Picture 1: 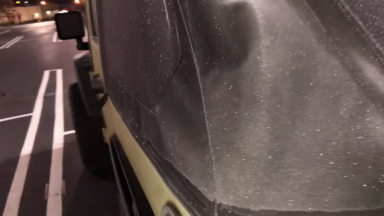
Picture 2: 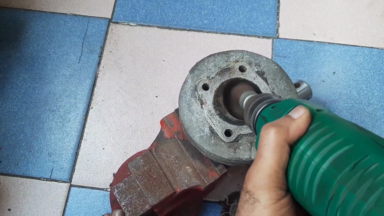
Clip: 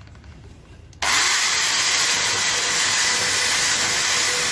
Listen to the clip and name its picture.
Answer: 2